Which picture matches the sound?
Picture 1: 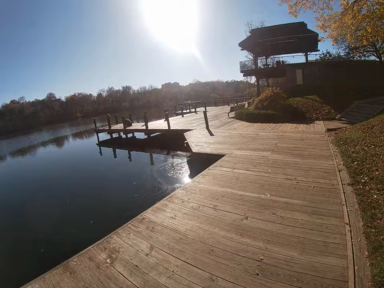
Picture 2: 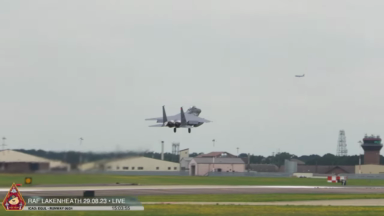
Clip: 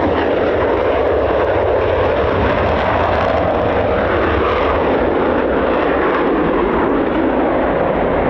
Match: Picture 2